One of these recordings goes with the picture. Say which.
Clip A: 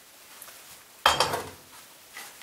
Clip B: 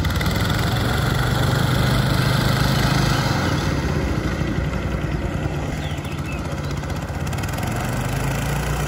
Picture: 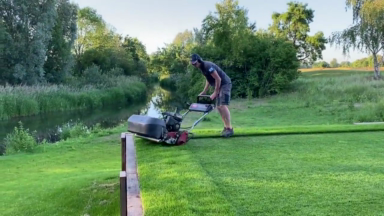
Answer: B